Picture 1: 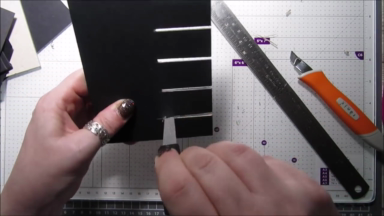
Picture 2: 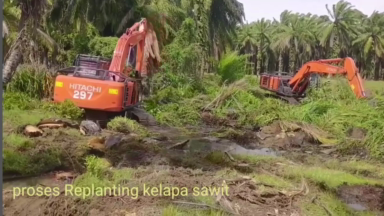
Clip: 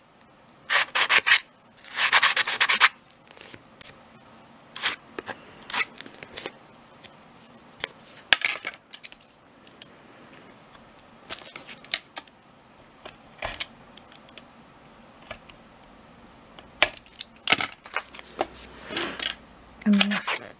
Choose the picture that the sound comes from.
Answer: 1